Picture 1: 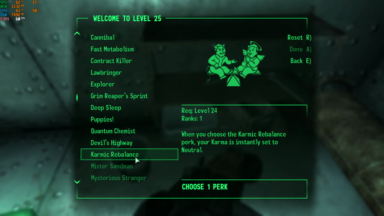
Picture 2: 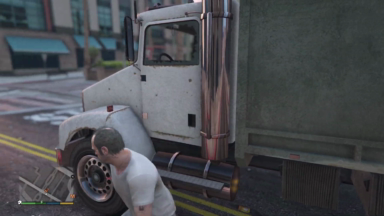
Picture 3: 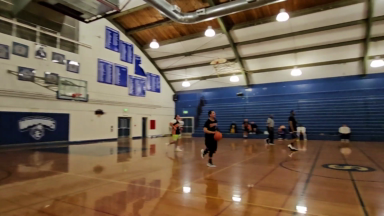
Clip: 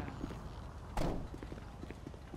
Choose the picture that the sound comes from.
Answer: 2